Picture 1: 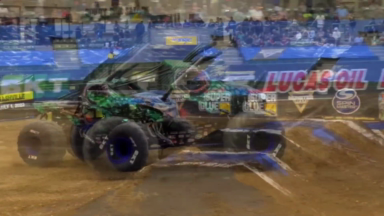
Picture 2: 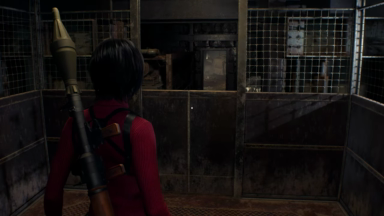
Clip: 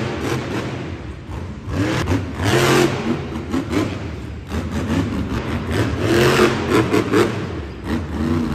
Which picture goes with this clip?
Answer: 1